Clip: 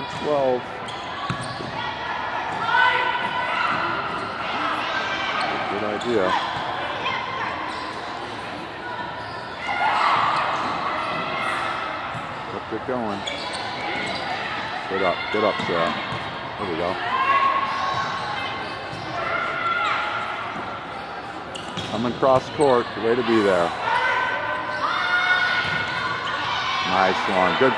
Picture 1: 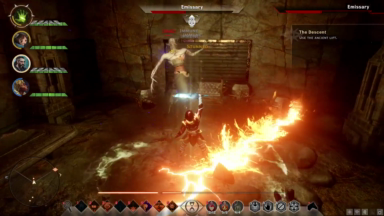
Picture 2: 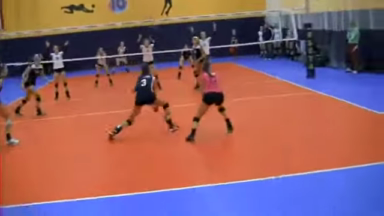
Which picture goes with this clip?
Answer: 2